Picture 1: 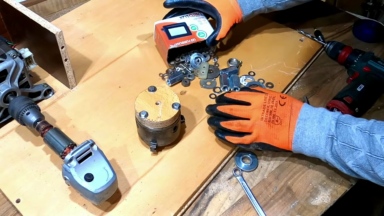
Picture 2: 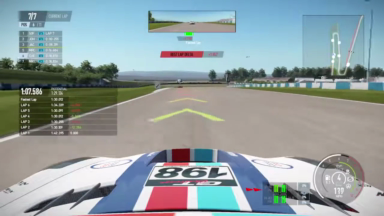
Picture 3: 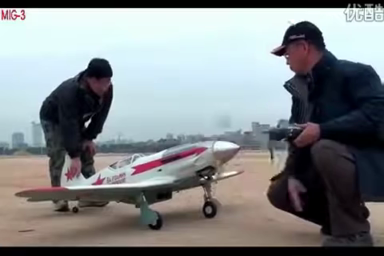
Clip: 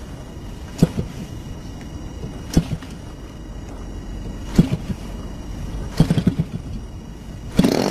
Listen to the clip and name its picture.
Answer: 3